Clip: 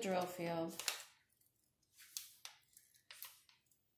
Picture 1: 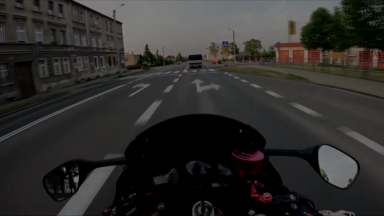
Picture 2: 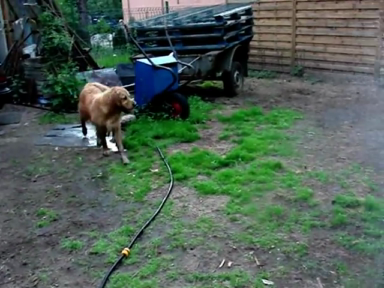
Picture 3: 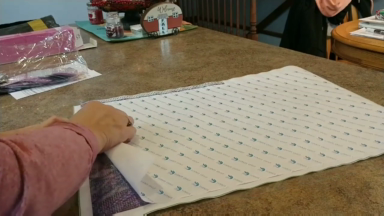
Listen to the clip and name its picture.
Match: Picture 3